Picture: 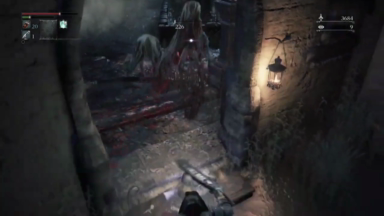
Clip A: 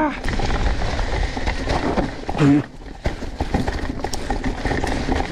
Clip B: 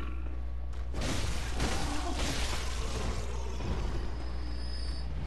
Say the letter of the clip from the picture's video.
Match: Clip B